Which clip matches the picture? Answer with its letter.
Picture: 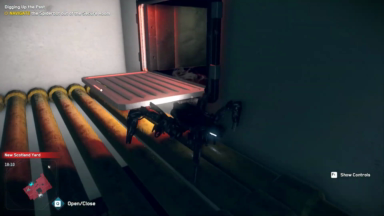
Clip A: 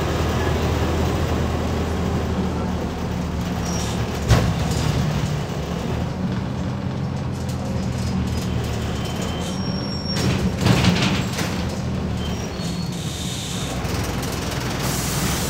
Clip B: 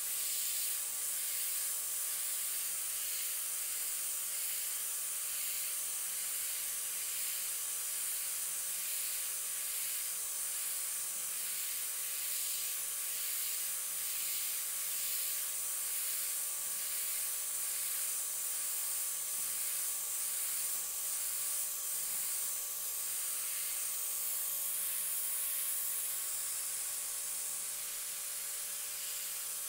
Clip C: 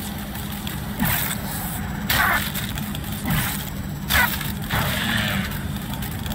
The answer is C